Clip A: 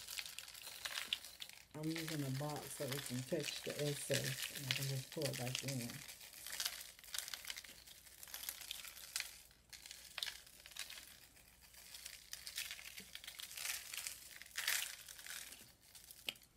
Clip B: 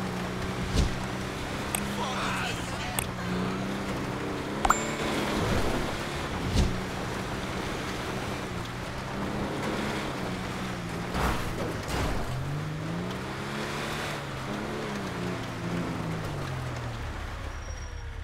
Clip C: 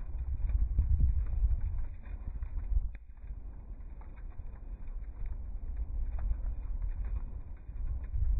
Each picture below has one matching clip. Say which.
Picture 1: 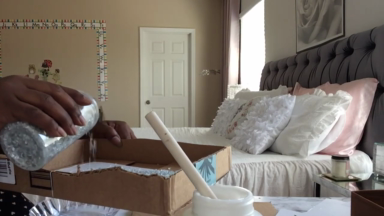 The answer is A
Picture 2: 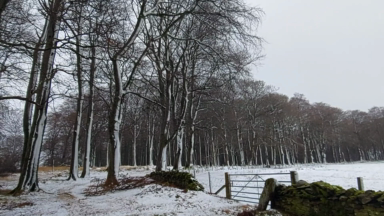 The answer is C